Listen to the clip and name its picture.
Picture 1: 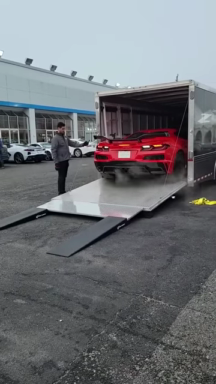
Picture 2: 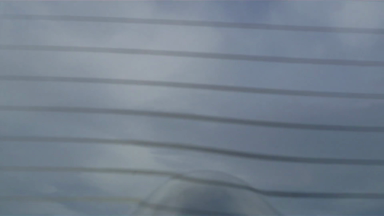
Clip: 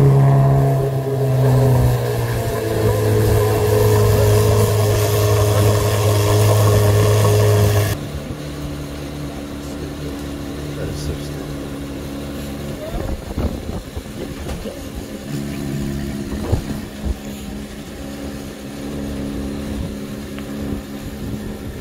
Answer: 1